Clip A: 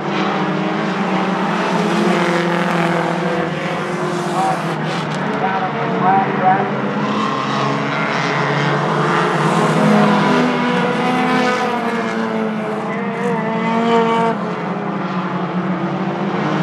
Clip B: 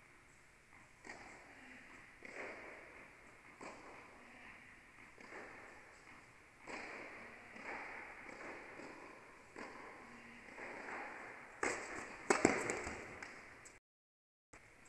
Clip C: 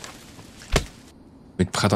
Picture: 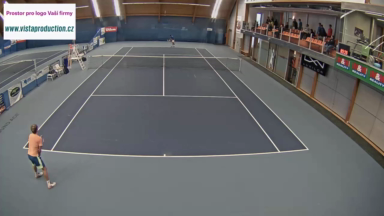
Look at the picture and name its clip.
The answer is B